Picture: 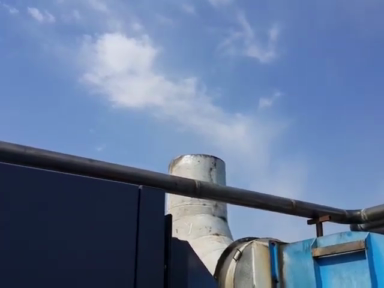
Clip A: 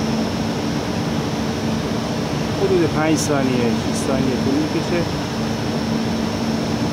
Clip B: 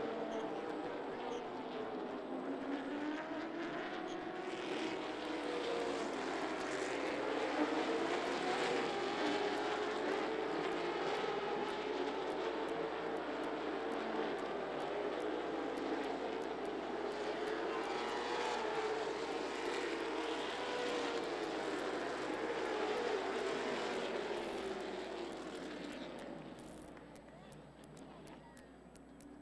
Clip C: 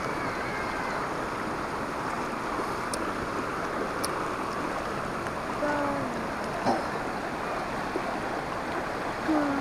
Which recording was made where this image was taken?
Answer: A